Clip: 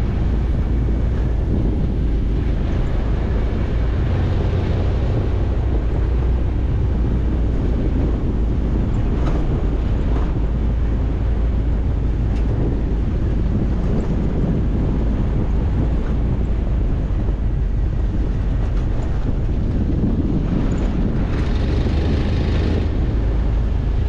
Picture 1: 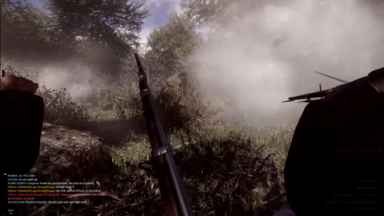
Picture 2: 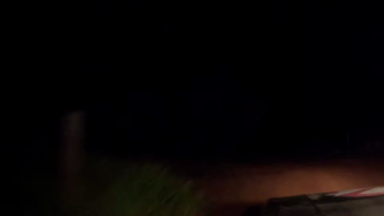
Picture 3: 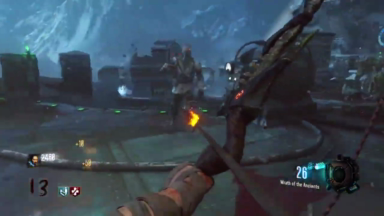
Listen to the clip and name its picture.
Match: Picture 2